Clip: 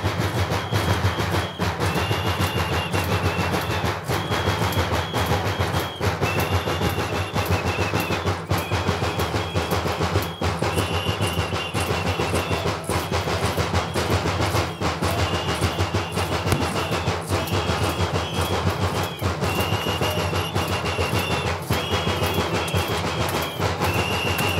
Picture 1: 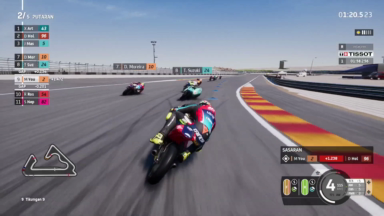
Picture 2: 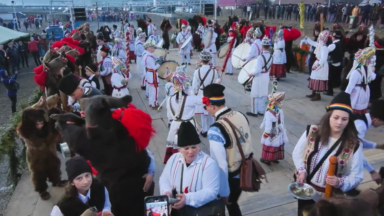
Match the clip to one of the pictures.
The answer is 2